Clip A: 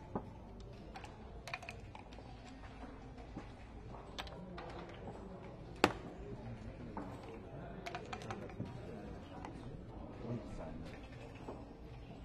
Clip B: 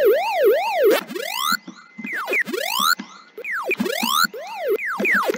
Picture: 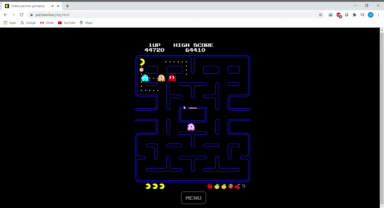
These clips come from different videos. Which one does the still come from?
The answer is B